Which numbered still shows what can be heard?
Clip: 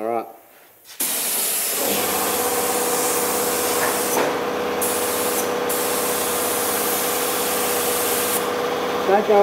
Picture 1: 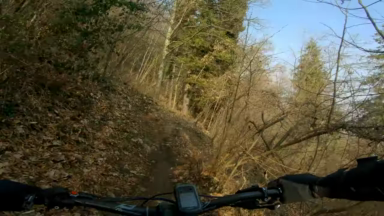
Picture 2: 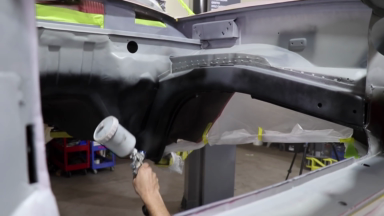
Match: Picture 2